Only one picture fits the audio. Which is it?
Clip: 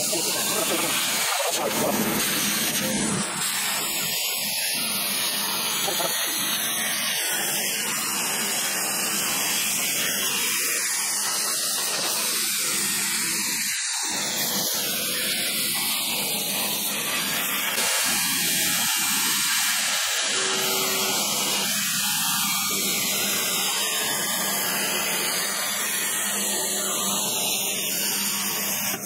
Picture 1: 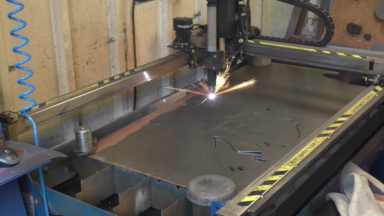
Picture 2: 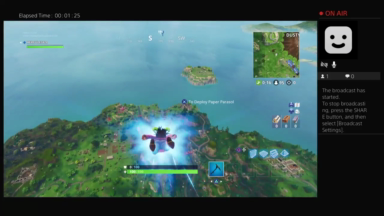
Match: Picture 1